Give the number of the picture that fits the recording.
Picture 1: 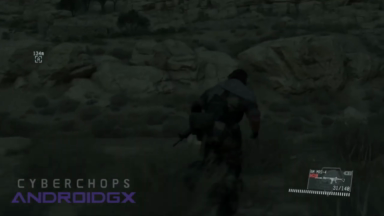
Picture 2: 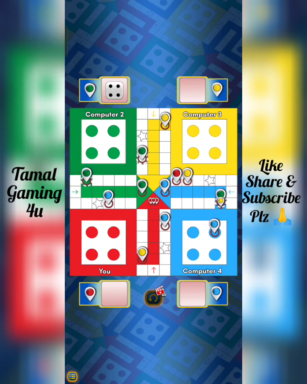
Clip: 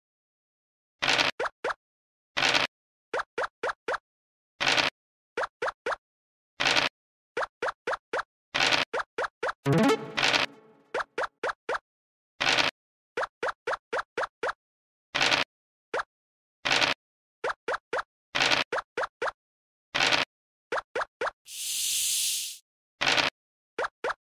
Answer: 2